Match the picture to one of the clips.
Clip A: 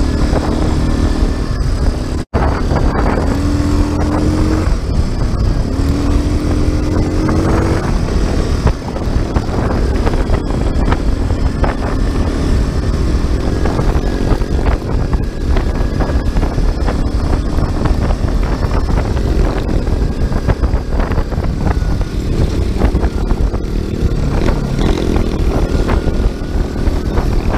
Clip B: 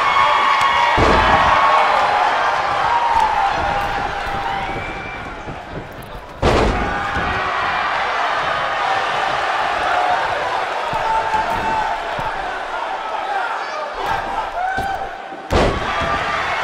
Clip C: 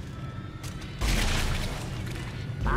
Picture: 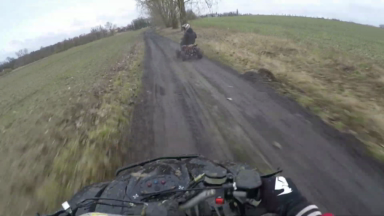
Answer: A